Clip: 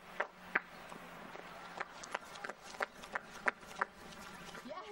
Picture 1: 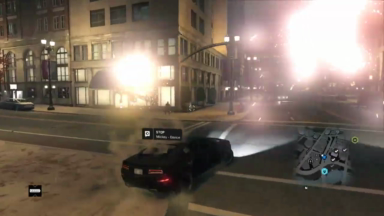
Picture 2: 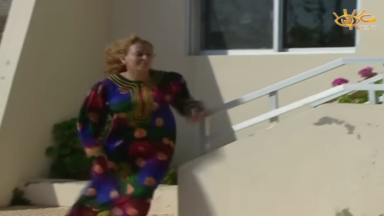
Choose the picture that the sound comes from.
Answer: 2